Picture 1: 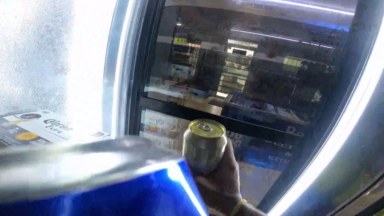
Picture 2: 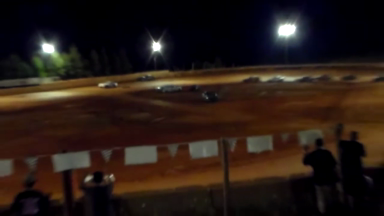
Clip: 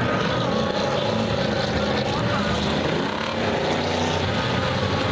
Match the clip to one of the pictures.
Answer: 2